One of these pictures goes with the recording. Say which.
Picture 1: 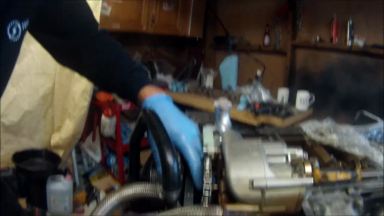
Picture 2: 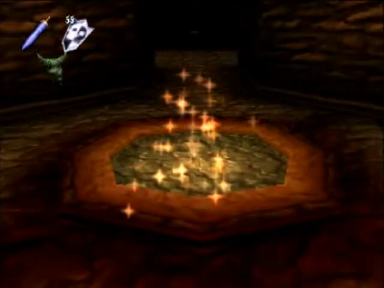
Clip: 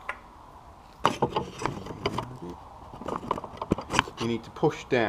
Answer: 1